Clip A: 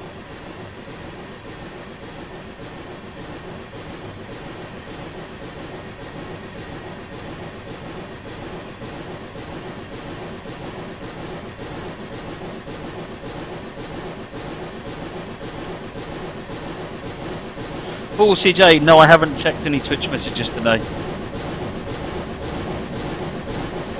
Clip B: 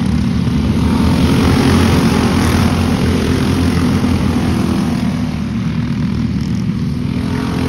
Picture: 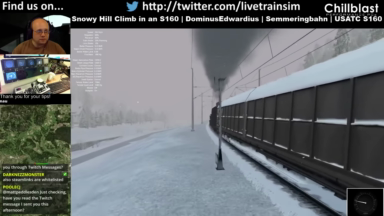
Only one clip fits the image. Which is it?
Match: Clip A